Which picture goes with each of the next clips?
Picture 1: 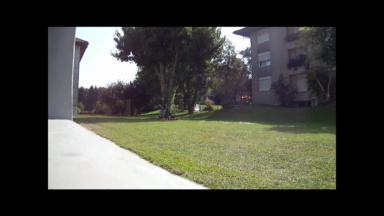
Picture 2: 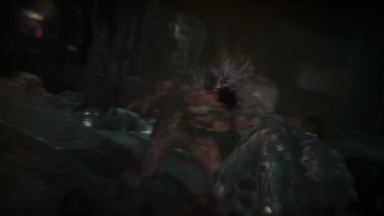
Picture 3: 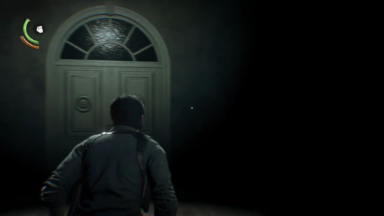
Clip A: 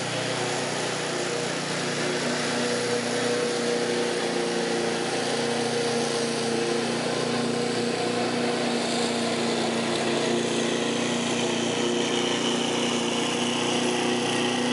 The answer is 1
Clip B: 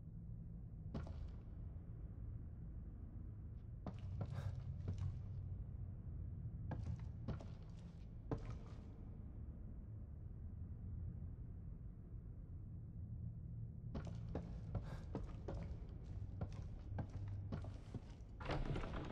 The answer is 3